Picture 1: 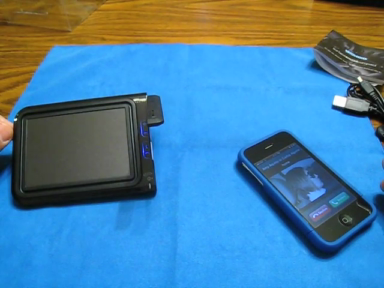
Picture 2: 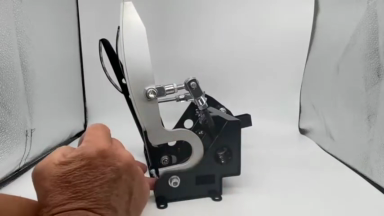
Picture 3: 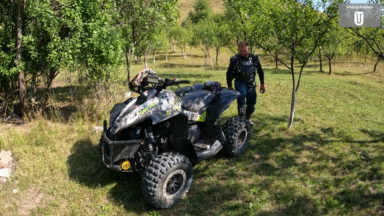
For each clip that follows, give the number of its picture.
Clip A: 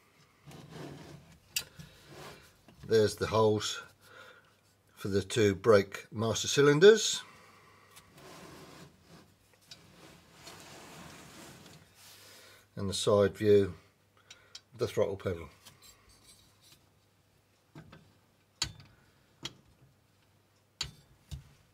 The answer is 2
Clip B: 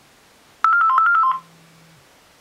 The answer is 1